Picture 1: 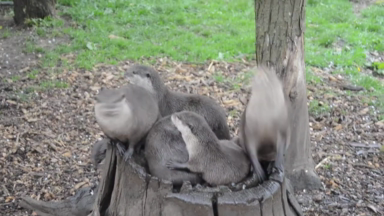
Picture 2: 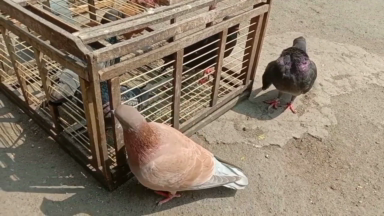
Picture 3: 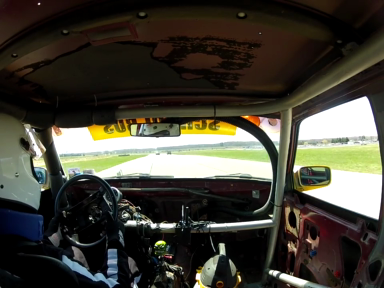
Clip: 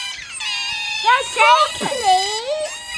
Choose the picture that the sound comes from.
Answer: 1